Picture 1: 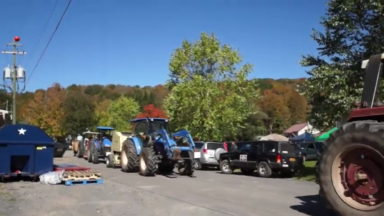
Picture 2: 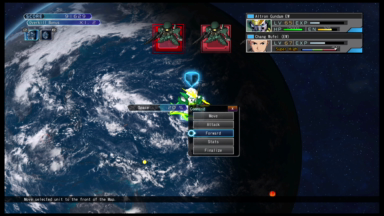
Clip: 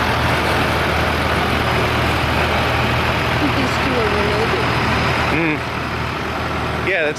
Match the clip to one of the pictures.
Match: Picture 1